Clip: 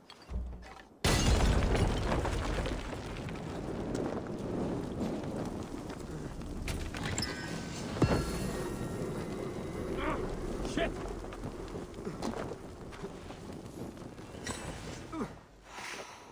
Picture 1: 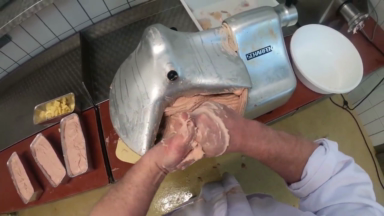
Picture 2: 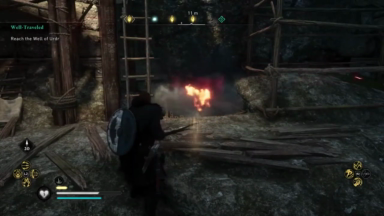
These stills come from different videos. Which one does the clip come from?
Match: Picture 2